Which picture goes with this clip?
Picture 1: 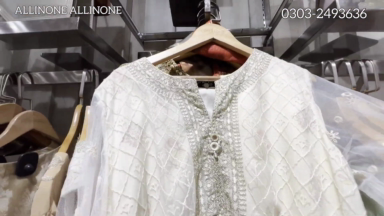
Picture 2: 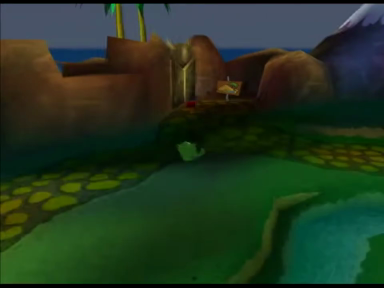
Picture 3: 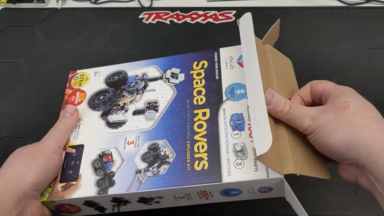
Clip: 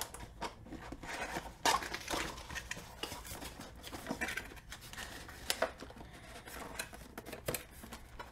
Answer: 3